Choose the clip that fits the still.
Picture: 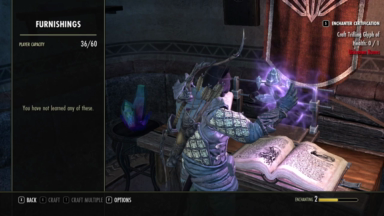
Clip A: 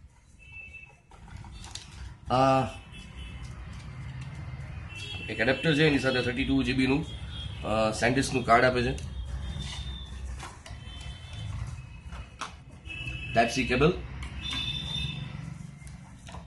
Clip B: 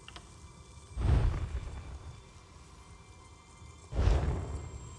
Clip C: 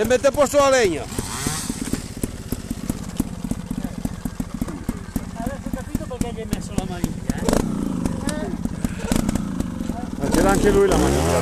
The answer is B